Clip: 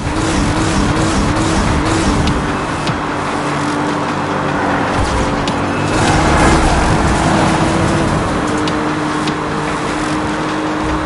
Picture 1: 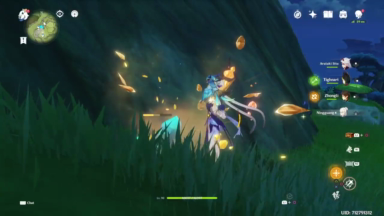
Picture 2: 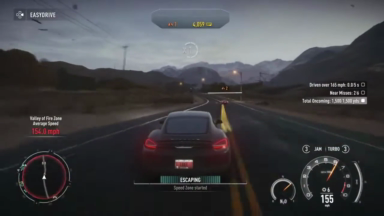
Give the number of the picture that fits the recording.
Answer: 2